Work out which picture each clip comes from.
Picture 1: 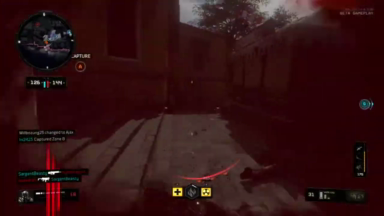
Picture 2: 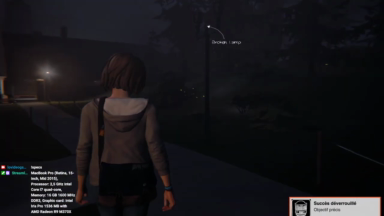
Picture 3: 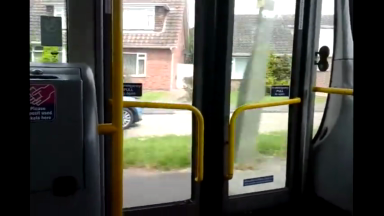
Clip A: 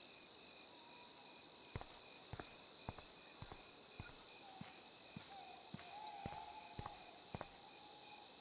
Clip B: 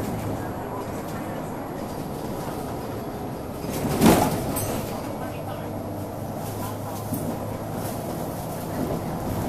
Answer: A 2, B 3